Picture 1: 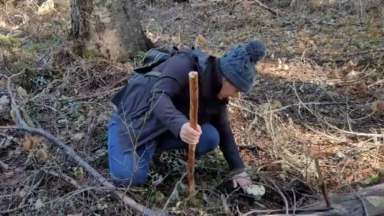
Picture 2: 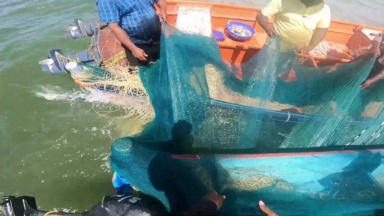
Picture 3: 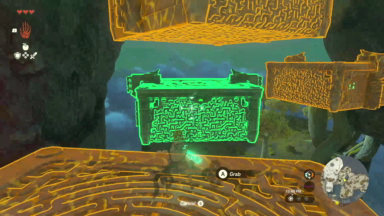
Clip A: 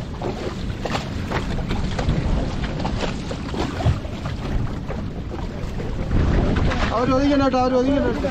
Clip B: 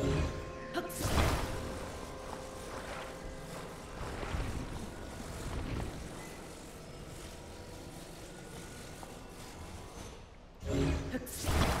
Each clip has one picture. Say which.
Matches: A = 2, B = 3